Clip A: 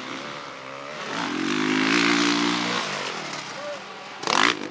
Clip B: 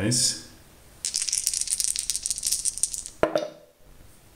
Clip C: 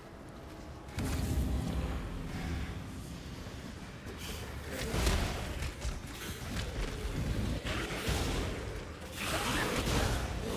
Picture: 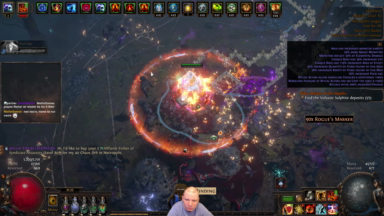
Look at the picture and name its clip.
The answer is C